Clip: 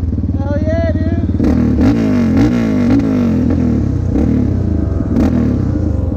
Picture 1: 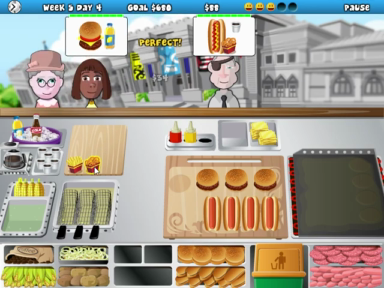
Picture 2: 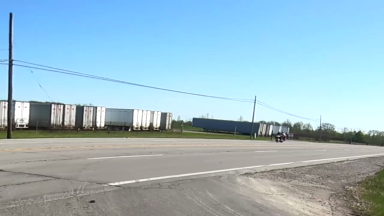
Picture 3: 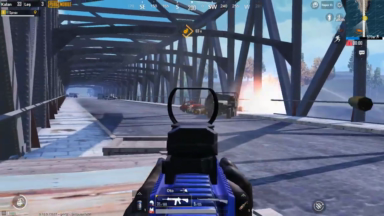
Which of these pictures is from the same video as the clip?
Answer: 2